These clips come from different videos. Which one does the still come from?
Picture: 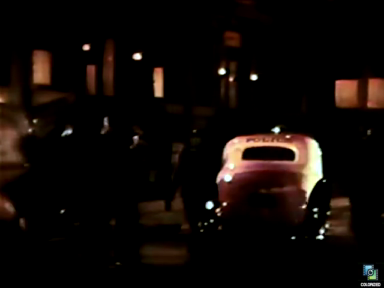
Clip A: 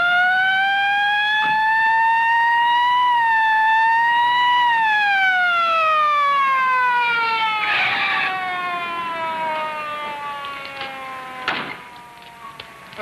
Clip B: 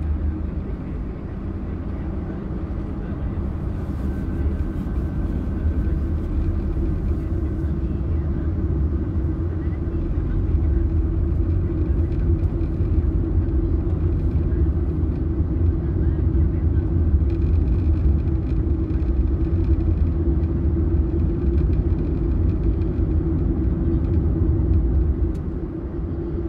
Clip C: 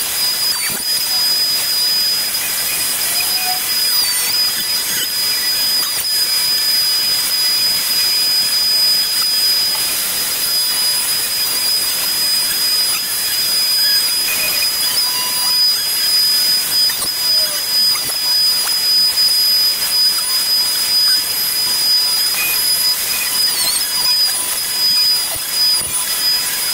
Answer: A